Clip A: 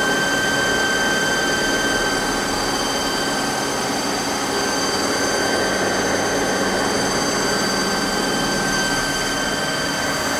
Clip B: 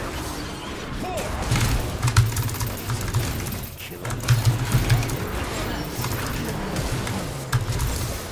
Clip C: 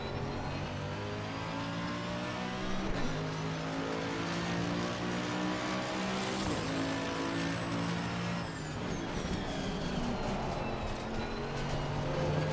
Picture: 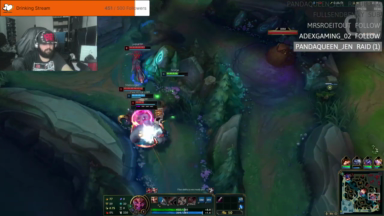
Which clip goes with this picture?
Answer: B